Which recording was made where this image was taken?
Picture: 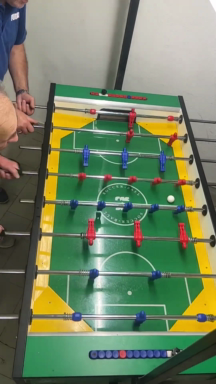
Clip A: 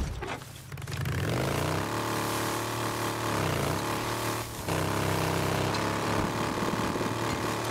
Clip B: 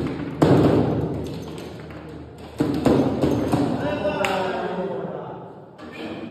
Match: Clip B